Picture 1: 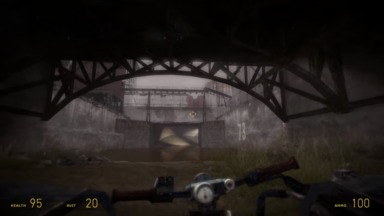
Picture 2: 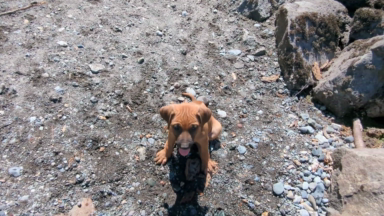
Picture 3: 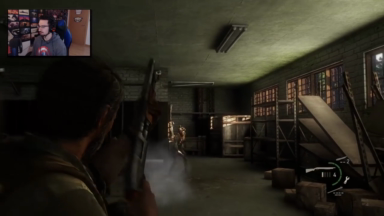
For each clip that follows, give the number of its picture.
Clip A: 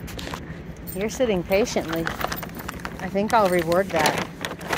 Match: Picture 2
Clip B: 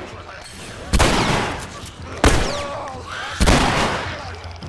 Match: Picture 3